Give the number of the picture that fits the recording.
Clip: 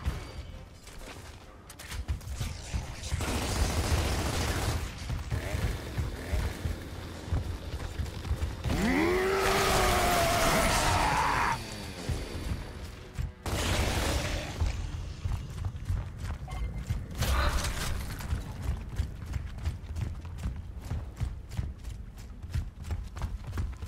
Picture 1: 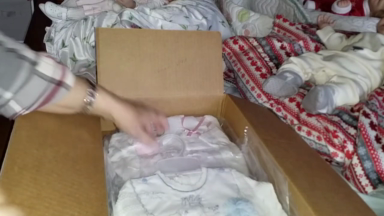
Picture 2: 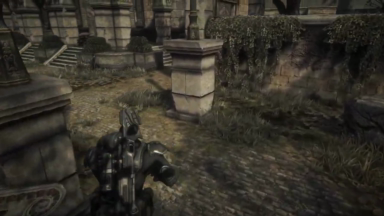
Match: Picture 2